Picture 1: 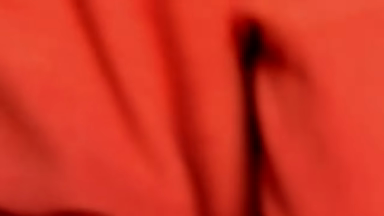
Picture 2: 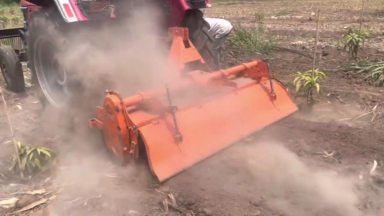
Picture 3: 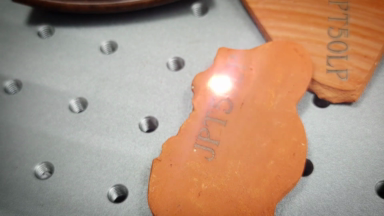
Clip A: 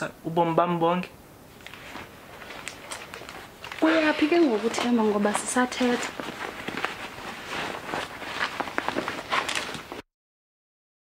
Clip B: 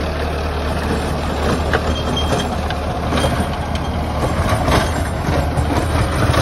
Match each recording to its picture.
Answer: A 1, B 2